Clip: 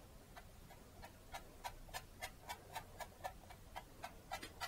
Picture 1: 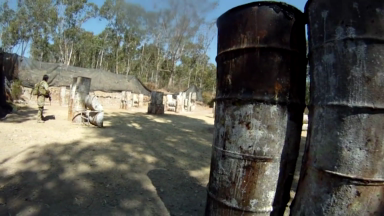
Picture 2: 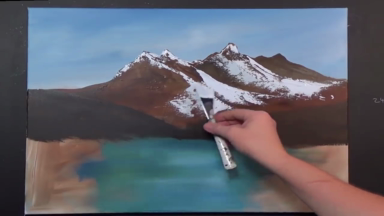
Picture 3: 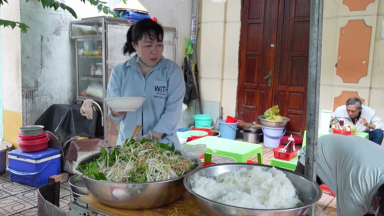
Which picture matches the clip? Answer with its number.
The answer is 2